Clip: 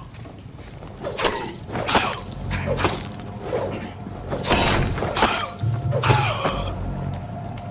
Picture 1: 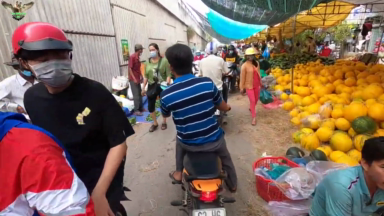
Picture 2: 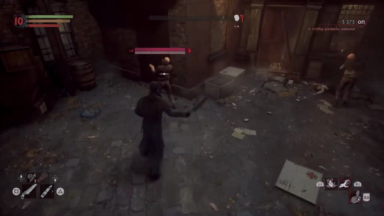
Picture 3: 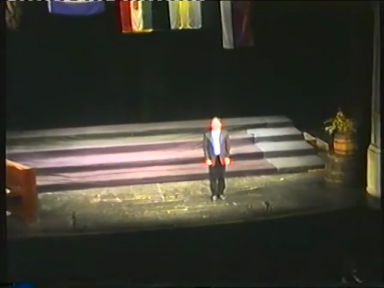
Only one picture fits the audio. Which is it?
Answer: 2